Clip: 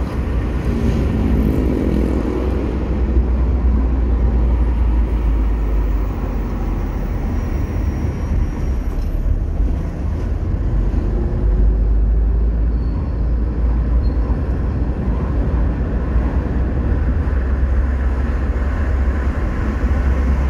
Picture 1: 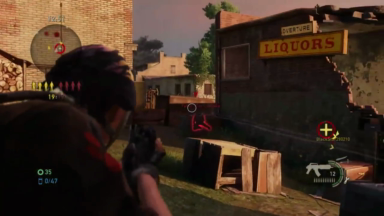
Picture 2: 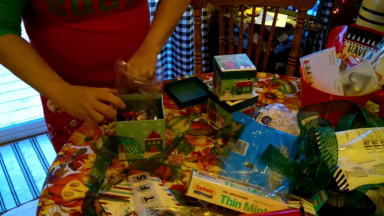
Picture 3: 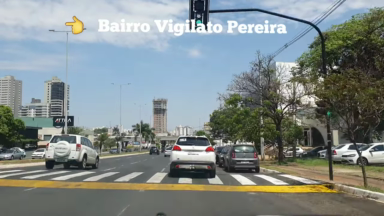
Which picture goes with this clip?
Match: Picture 3